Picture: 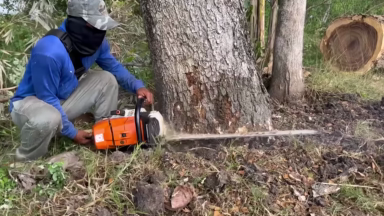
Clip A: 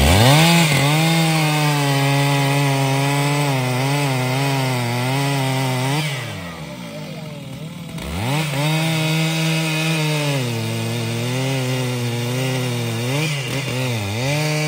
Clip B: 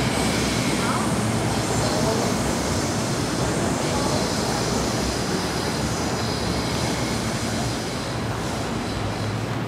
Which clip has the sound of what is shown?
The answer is A